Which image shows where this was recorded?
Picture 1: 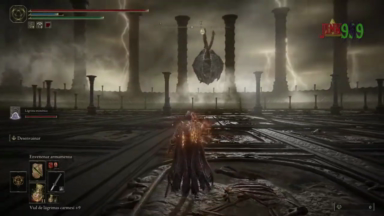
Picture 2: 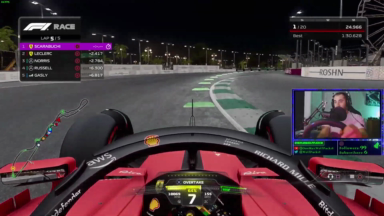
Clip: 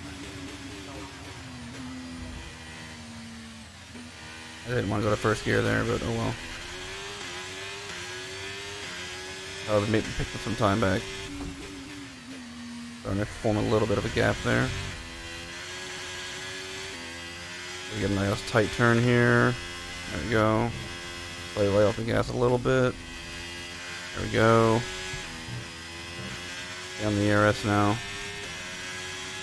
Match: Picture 2